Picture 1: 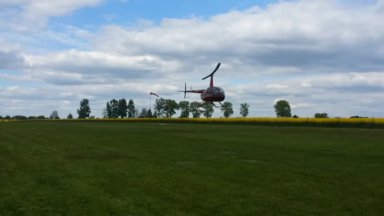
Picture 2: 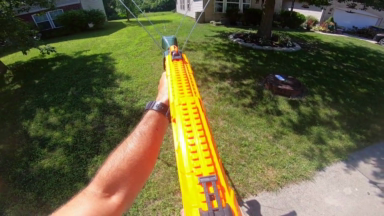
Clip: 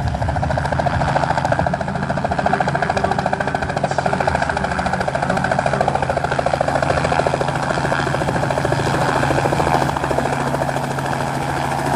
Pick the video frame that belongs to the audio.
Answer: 1